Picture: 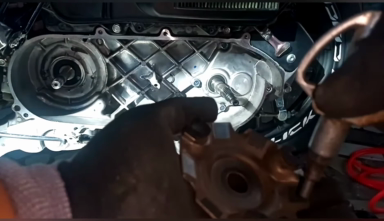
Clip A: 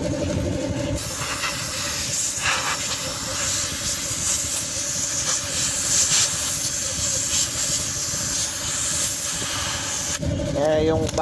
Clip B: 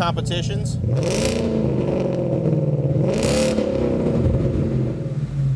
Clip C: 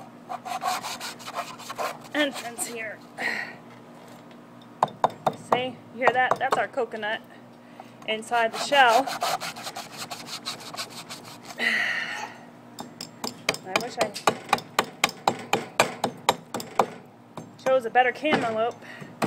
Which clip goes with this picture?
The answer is A